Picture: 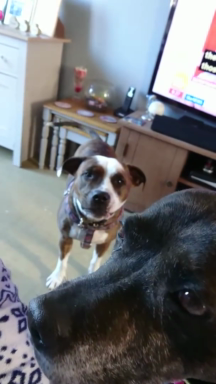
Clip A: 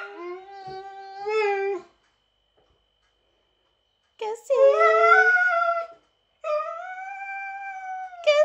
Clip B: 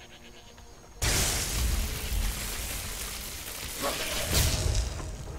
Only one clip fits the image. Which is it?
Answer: A